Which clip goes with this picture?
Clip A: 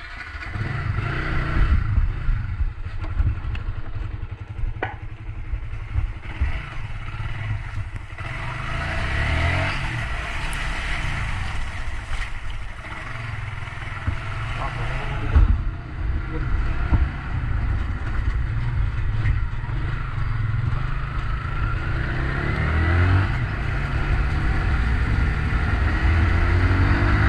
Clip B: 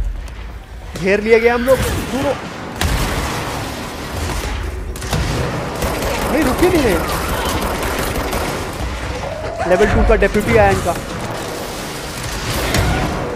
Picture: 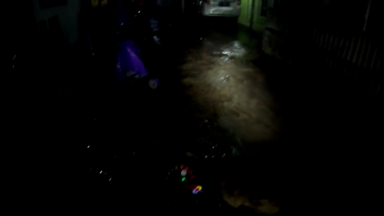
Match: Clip A